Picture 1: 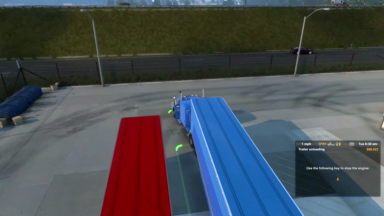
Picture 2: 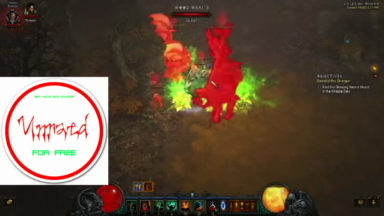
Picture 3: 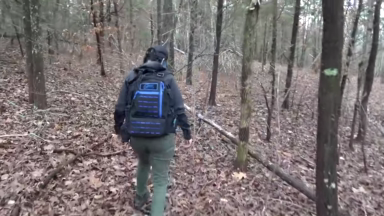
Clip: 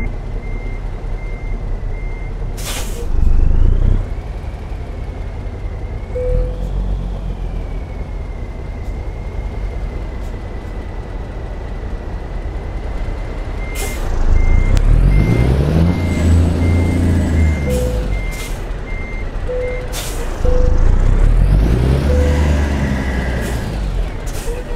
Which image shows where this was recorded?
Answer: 1